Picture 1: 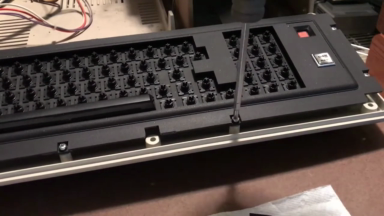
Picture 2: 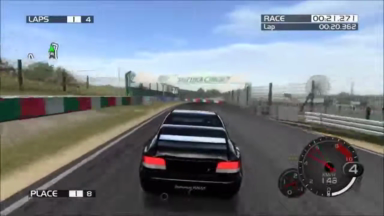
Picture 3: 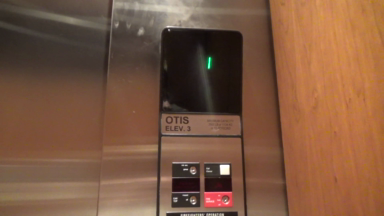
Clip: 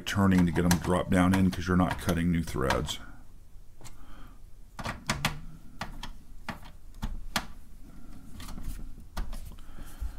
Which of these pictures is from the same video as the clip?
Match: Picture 1